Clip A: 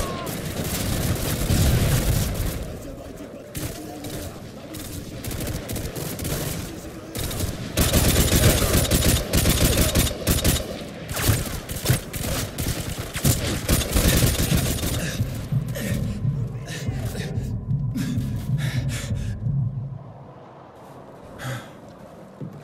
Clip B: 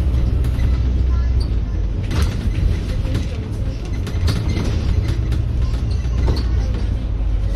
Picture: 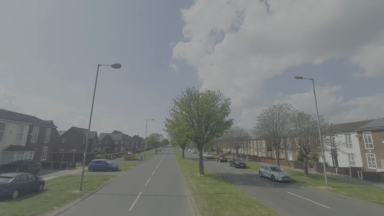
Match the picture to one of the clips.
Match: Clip B